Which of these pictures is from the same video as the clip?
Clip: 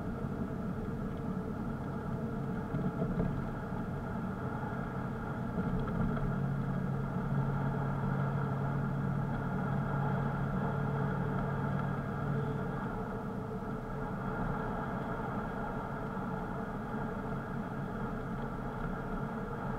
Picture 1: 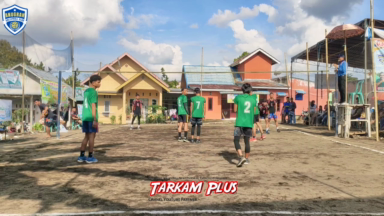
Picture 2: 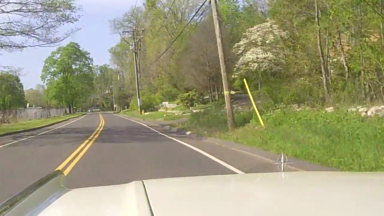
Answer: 2